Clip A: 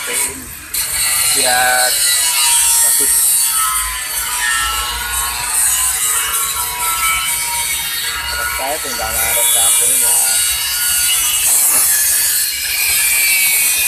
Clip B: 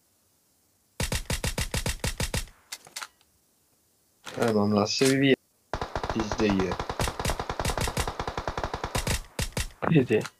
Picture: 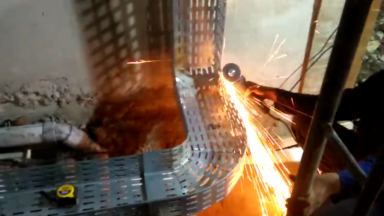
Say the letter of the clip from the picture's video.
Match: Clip A